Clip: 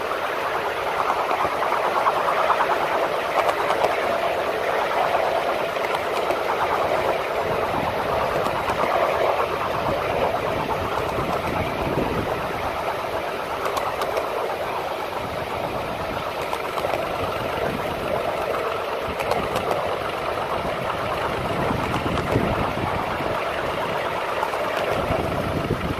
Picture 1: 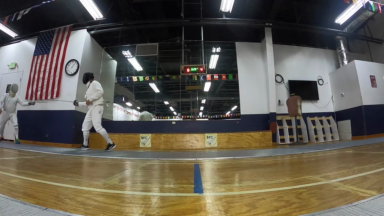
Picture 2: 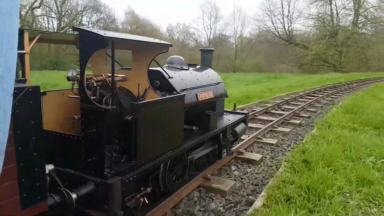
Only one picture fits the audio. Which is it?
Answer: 2